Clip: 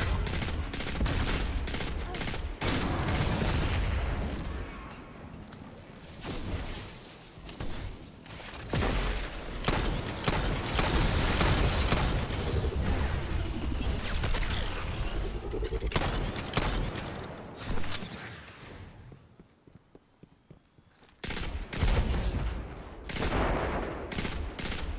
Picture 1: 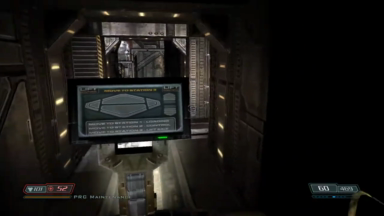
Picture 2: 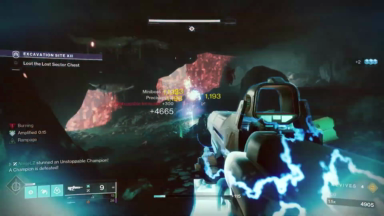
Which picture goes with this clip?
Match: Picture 2